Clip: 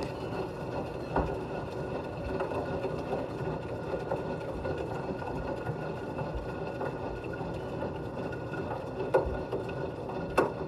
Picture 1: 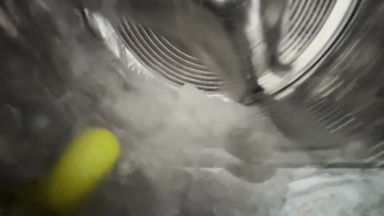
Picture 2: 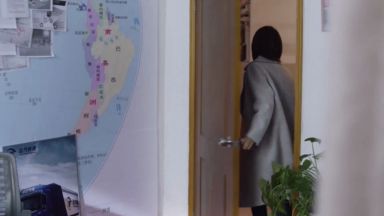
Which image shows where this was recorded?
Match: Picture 1